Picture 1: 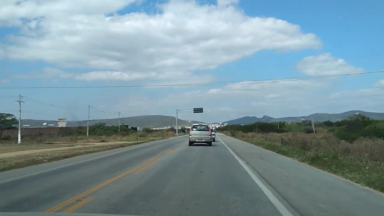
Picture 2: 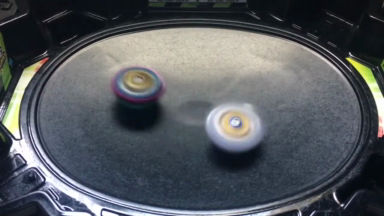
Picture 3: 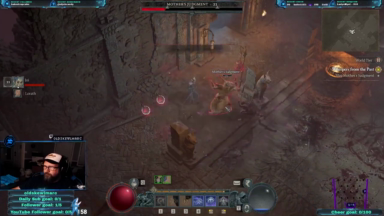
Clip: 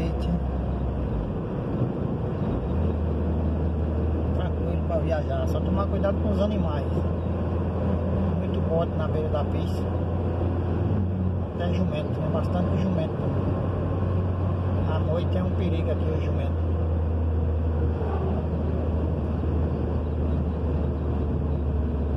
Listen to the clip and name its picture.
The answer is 1